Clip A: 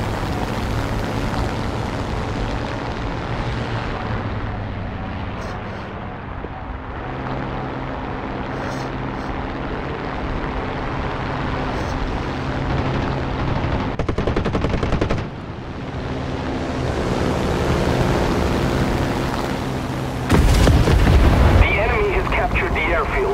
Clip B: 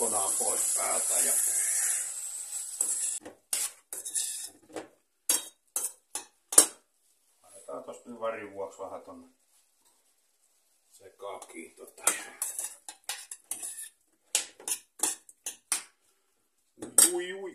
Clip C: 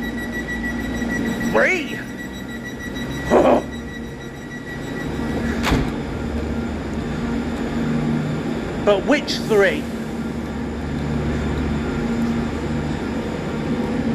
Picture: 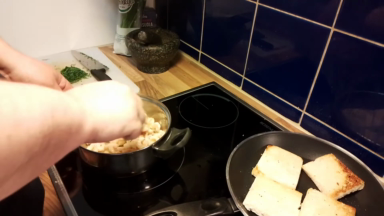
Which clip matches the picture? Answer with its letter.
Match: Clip B